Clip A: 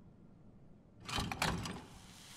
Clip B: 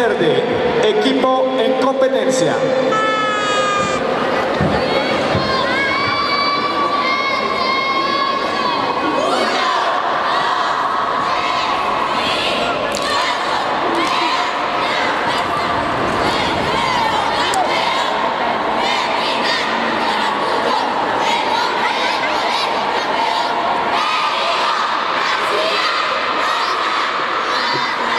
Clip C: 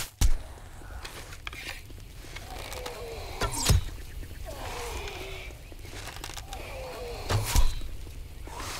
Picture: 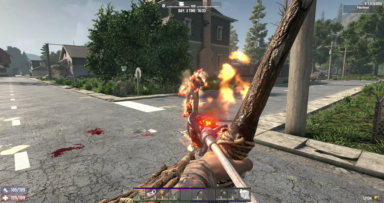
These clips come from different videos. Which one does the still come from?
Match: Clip C